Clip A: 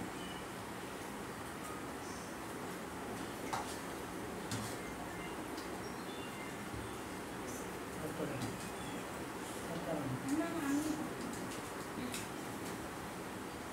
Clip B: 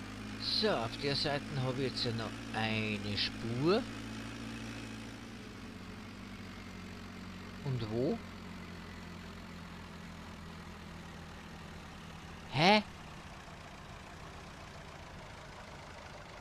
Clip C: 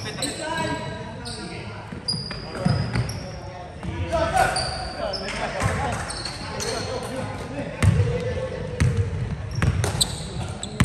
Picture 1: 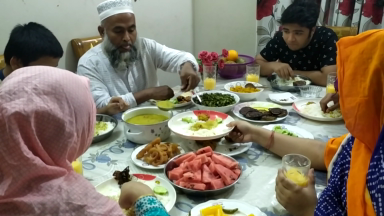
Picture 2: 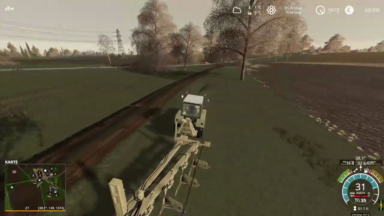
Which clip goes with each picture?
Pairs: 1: A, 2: B